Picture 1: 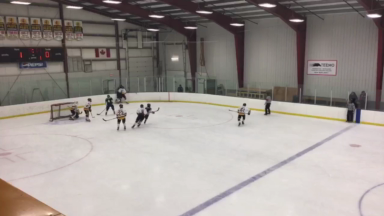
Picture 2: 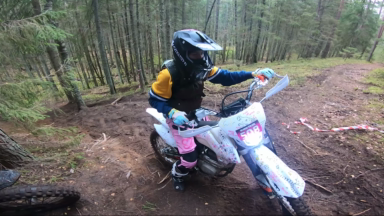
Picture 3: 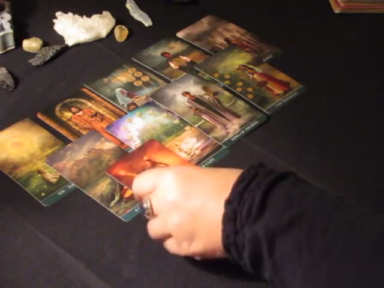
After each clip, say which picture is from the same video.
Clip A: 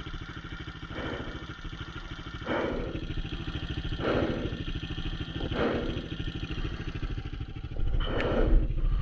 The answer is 2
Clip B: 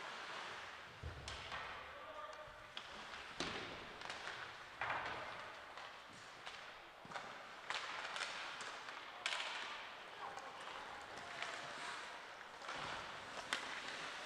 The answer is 1